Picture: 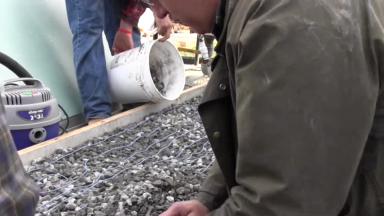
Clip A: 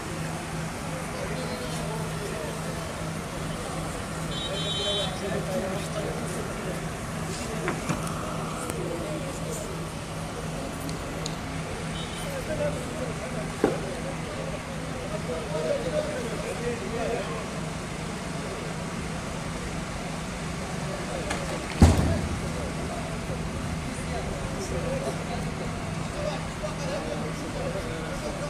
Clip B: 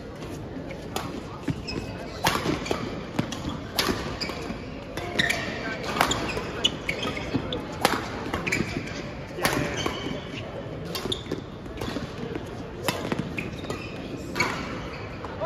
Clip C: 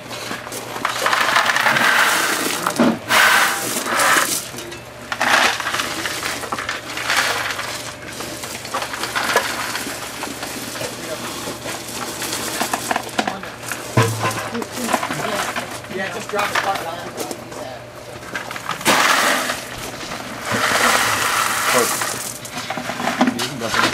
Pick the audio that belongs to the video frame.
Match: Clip C